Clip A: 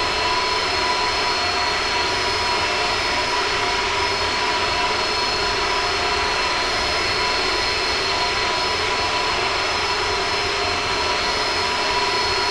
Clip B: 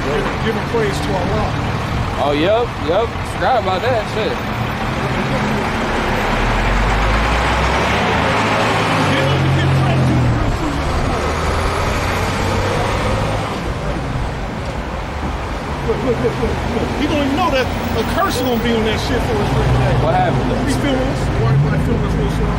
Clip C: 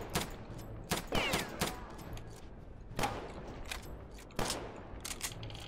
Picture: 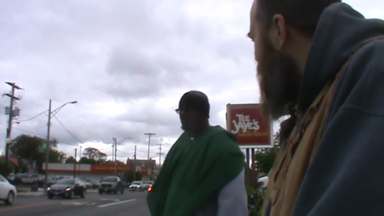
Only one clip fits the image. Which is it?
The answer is B